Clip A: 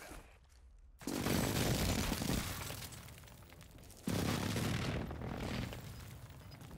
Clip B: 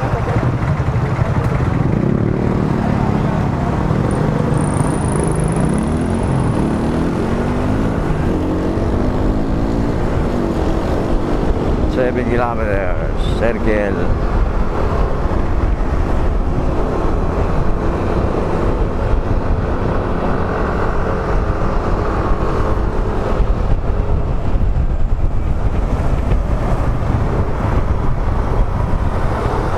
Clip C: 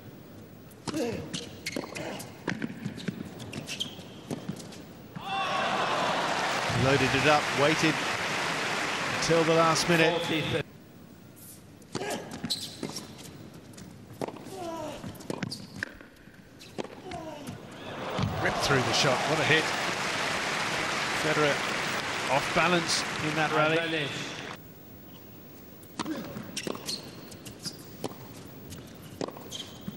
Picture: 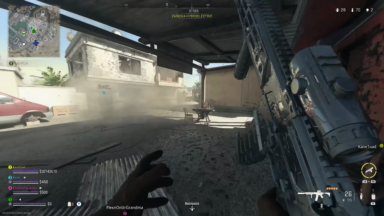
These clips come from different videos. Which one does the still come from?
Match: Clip A